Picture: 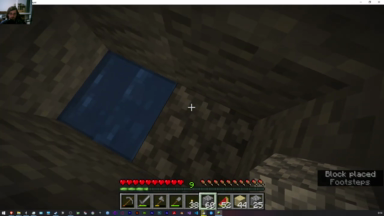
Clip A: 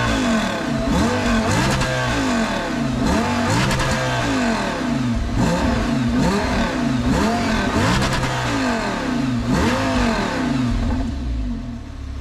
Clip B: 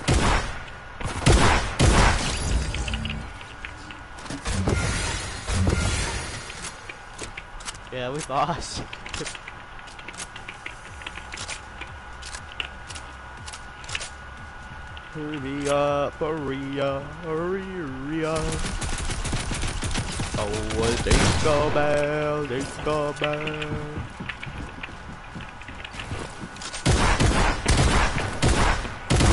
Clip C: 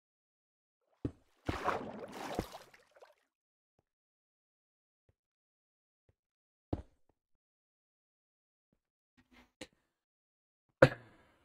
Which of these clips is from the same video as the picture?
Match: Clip C